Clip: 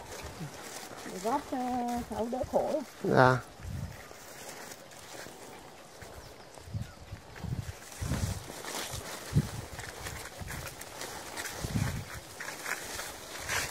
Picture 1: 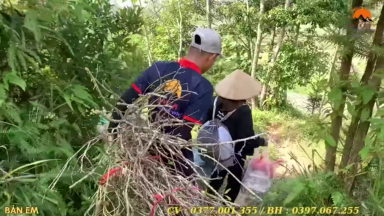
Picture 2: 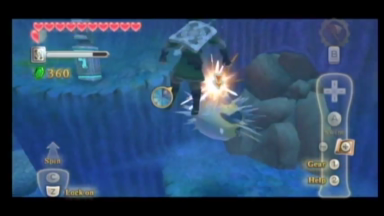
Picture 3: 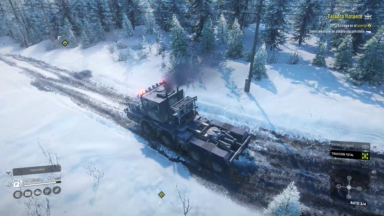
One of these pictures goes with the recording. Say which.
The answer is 1